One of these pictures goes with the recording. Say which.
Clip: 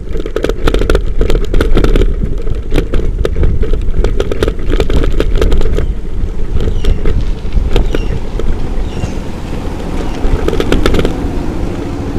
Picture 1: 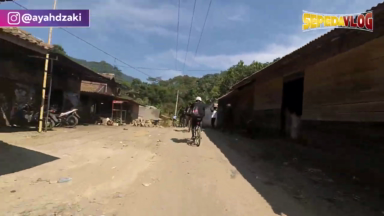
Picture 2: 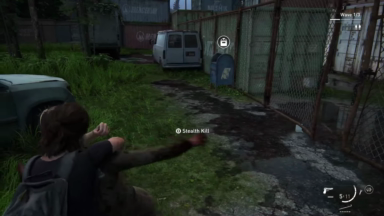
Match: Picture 1